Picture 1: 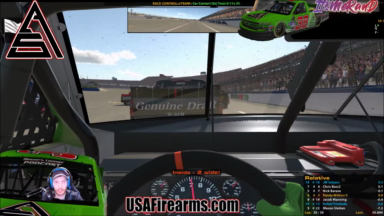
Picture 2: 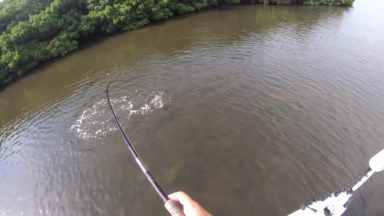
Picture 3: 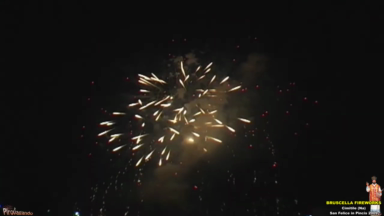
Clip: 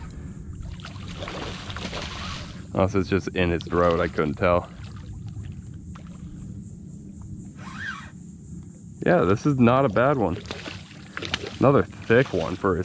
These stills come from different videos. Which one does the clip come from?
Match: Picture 2